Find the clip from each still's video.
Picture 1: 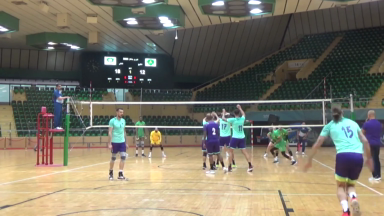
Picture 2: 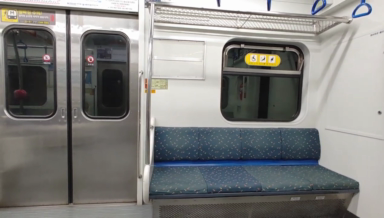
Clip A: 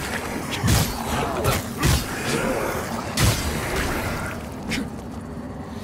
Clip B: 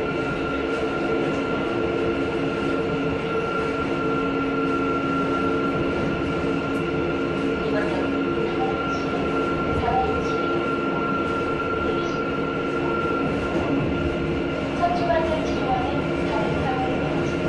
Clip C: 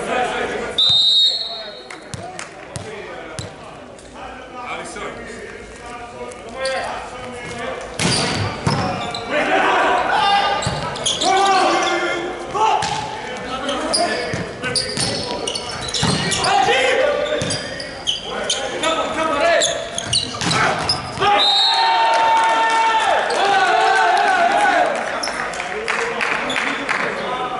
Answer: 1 C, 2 B